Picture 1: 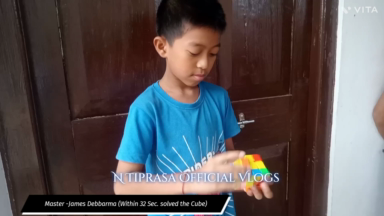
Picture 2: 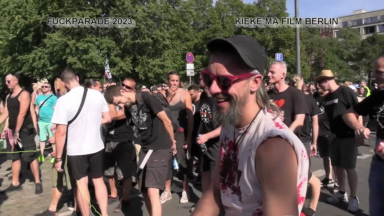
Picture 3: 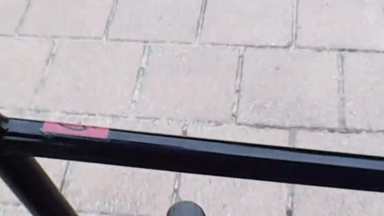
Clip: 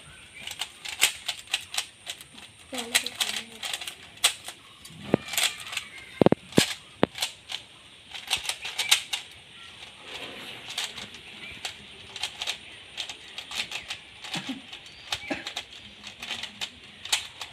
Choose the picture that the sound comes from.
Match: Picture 1